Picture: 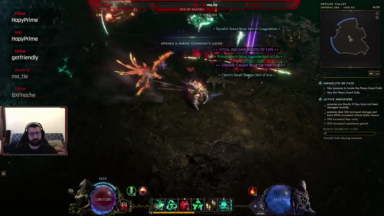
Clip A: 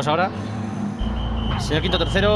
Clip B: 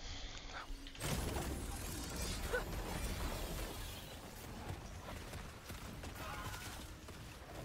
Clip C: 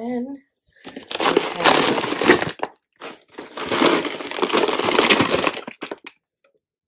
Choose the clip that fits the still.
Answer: B